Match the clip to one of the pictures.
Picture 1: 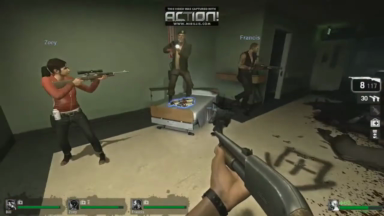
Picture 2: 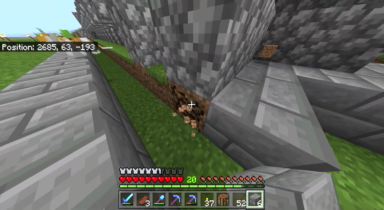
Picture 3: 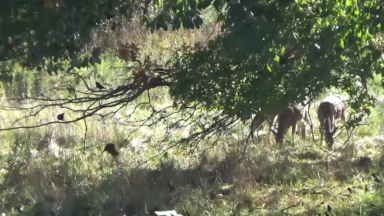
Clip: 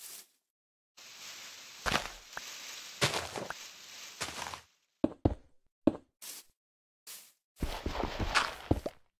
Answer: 2